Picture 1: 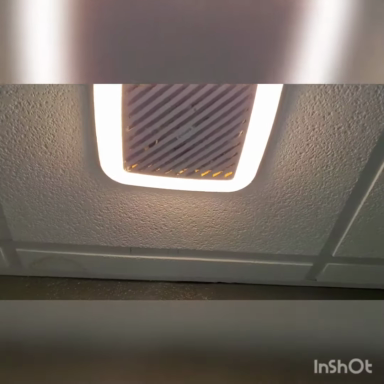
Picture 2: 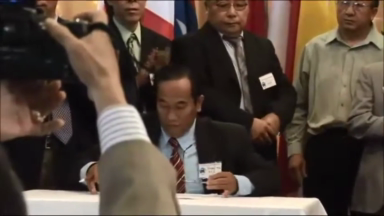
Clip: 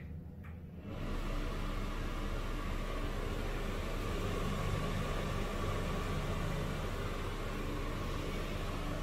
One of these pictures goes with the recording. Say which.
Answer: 1